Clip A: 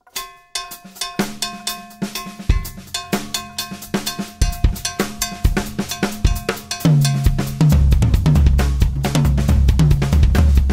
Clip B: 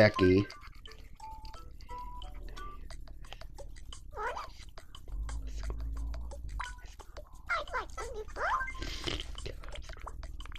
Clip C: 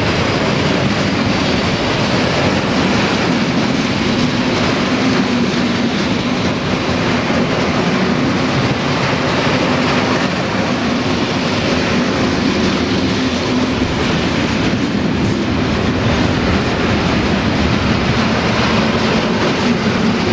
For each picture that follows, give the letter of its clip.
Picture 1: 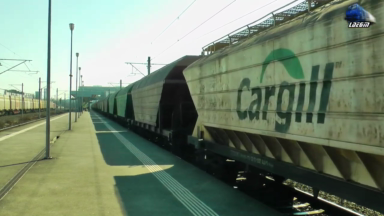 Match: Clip C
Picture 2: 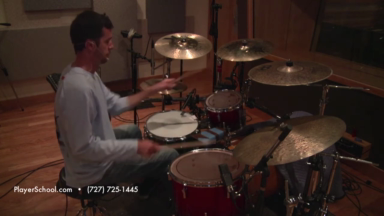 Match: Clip A